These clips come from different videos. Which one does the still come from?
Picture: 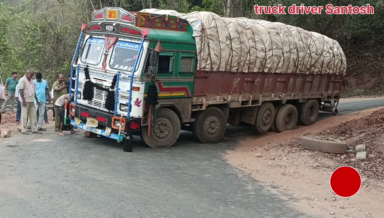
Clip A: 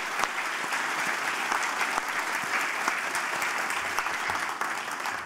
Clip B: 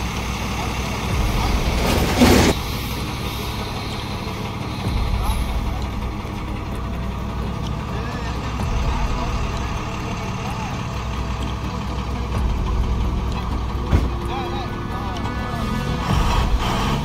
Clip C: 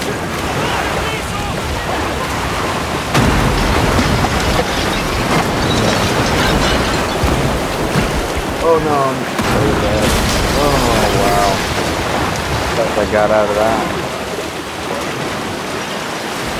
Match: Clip B